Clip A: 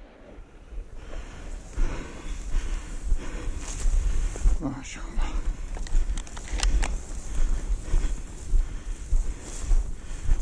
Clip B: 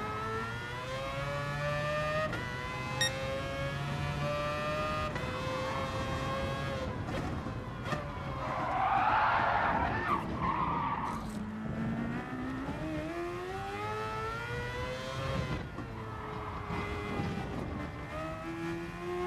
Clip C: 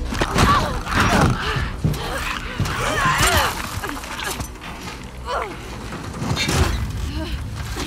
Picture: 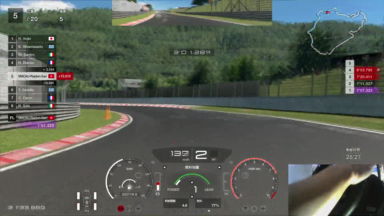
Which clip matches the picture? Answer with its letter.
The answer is B